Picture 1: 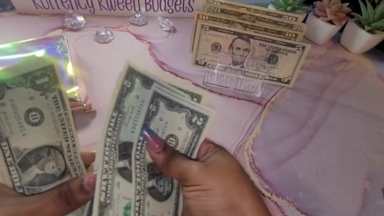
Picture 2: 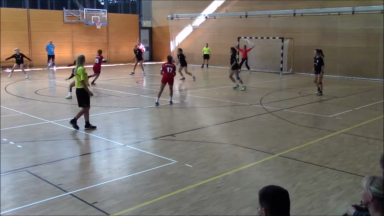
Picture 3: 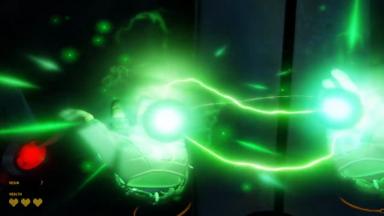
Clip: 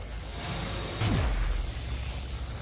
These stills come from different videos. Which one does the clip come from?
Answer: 3